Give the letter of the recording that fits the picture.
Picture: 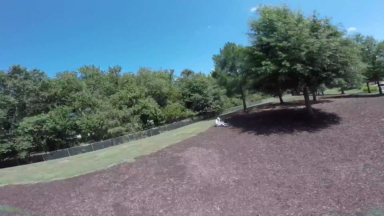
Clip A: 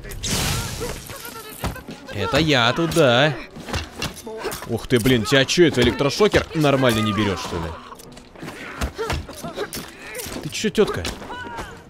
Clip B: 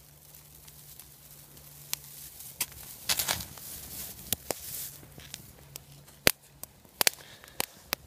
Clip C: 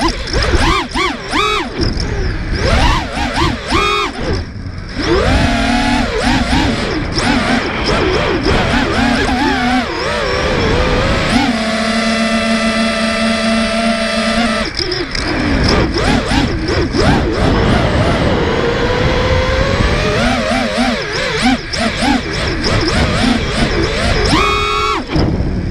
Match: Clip C